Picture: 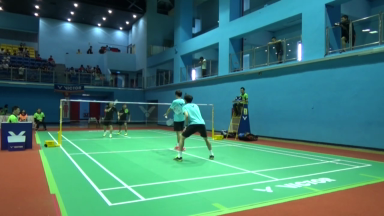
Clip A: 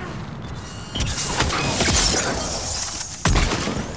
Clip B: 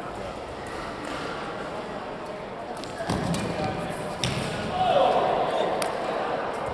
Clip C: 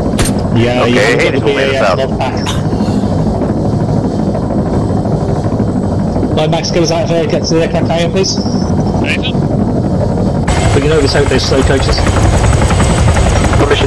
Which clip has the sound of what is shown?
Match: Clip B